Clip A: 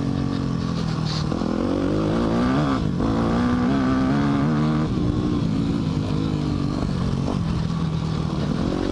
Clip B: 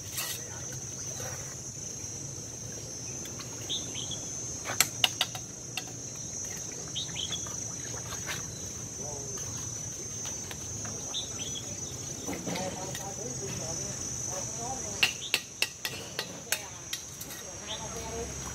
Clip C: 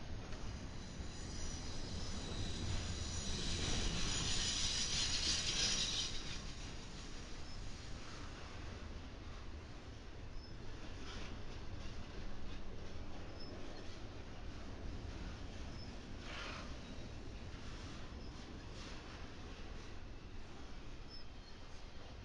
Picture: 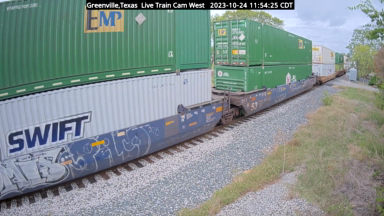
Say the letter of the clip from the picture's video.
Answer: C